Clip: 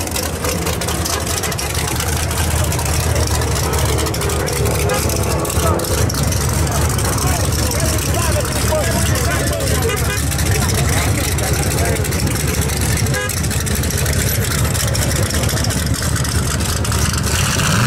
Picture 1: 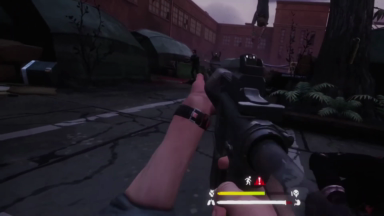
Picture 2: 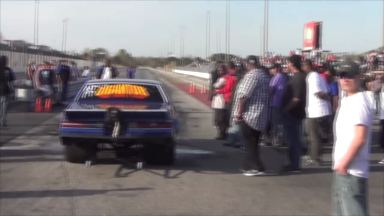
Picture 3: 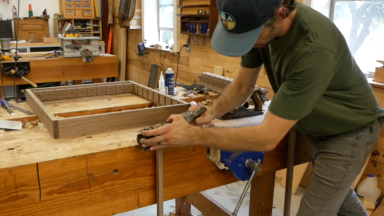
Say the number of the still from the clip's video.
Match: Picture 2